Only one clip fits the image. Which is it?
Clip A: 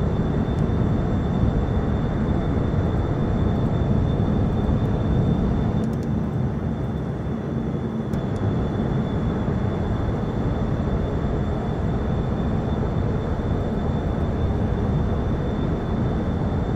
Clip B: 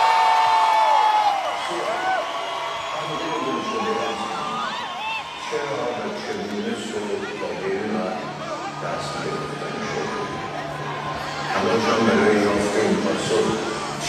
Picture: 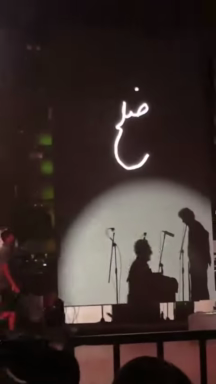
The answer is B